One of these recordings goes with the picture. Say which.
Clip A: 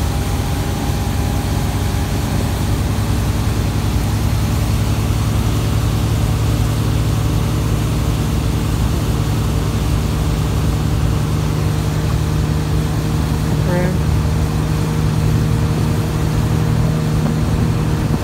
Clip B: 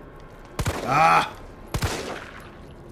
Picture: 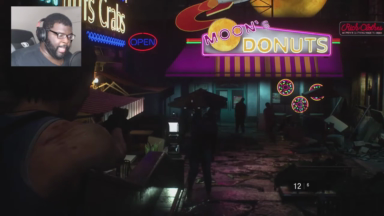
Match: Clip B